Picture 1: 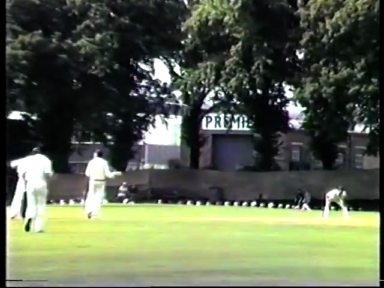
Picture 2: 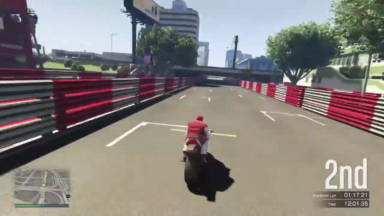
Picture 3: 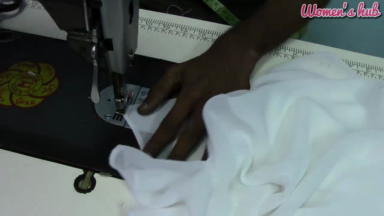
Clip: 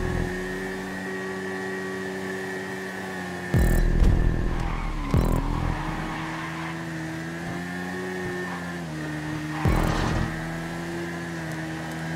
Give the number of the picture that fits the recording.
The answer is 2